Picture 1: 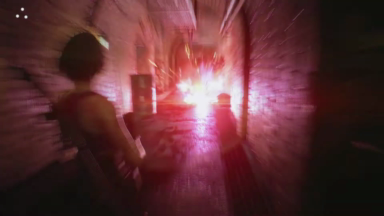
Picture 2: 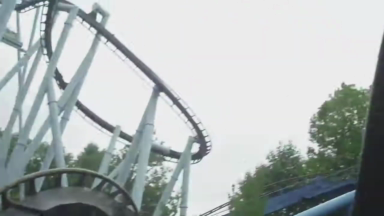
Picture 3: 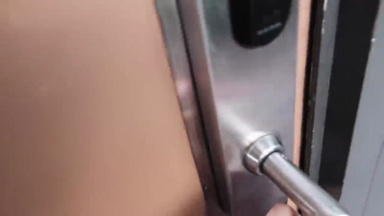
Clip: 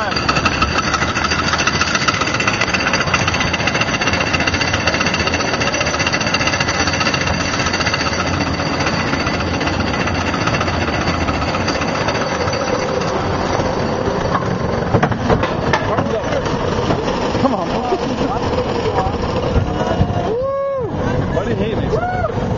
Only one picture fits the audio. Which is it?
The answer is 2